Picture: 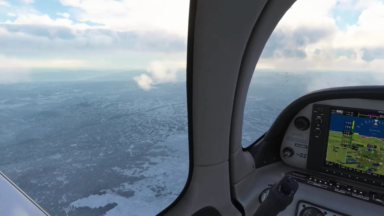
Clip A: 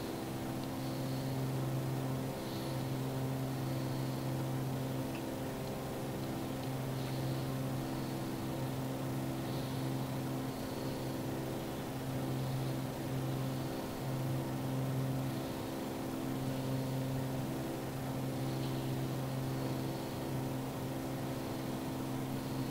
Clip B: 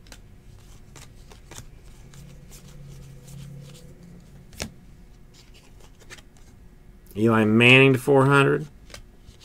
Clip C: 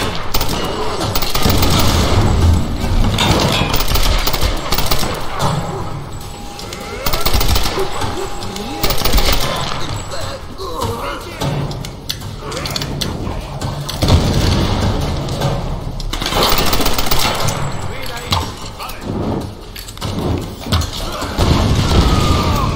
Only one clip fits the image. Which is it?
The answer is A